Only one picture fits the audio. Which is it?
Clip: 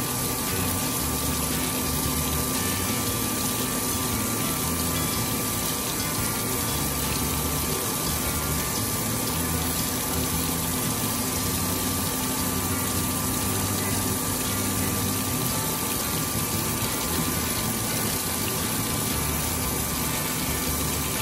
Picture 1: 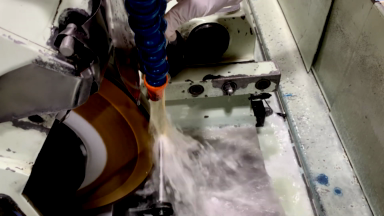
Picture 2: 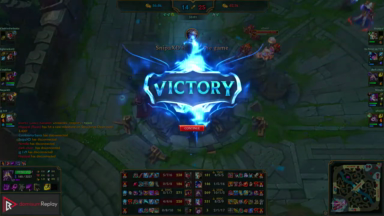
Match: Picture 1